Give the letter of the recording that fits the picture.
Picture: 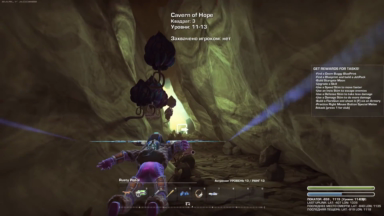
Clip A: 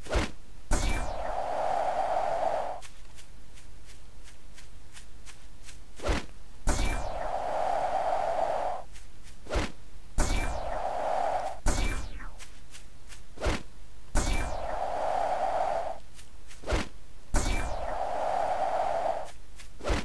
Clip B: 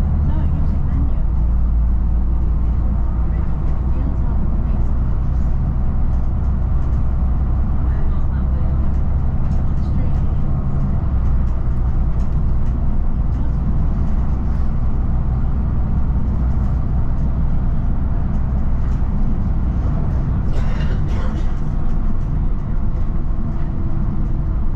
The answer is A